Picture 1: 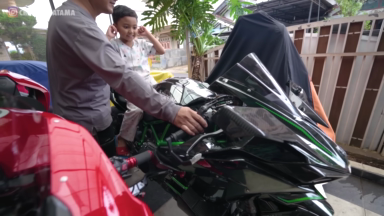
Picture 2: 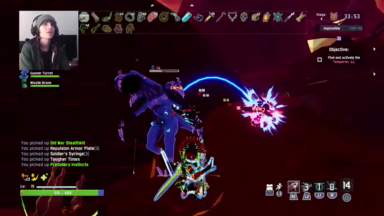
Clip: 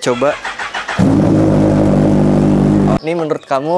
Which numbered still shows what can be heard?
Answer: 1